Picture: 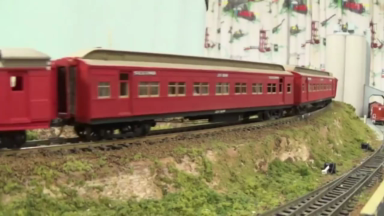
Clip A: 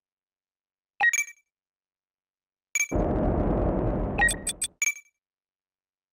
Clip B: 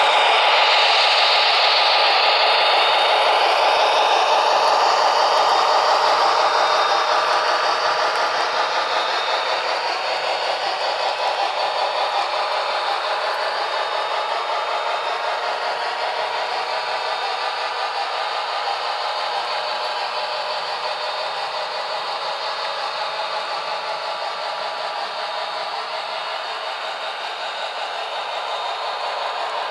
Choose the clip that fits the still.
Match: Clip B